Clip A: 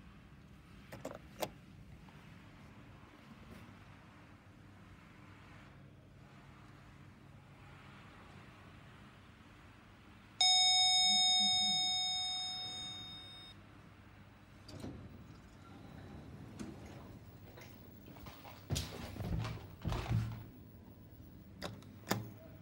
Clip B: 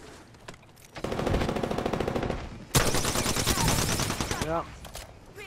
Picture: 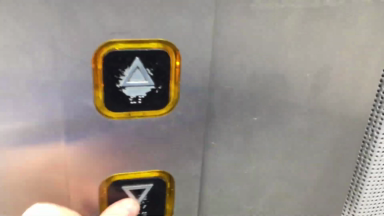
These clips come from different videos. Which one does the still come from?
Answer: A